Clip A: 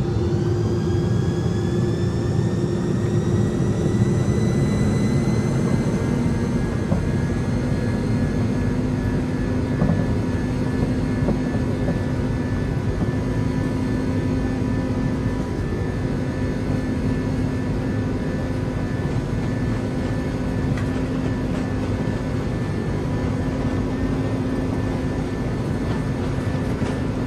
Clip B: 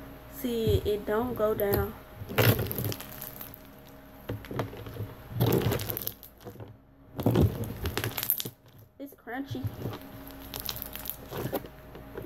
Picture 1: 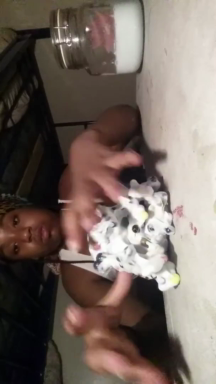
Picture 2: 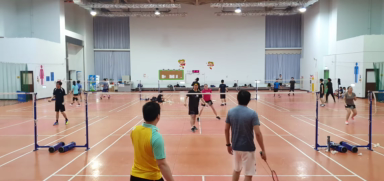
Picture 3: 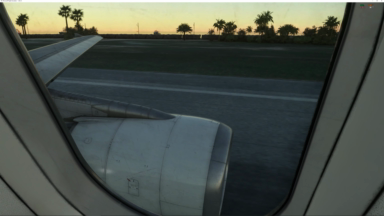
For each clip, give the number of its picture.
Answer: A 3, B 1